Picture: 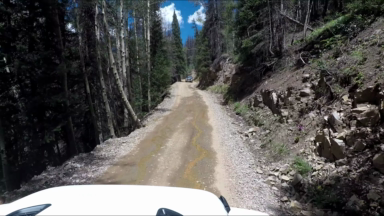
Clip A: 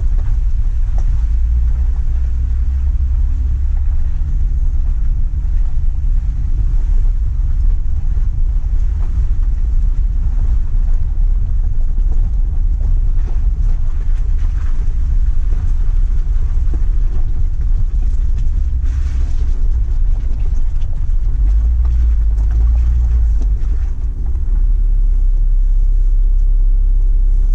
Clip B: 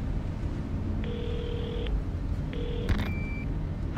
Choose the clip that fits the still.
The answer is A